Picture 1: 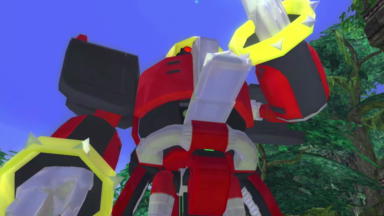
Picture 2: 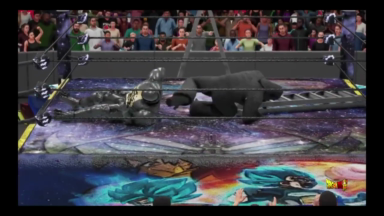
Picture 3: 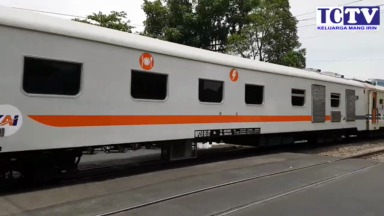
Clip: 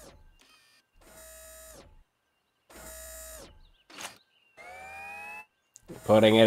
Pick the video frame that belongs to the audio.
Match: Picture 1